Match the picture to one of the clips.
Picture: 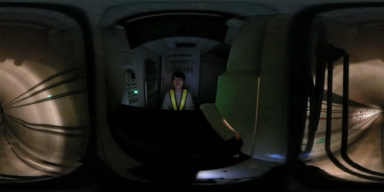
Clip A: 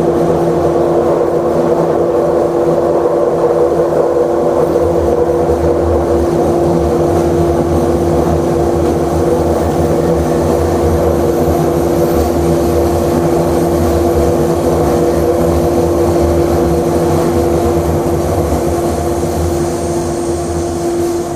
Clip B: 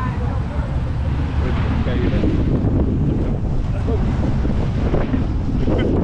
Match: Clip A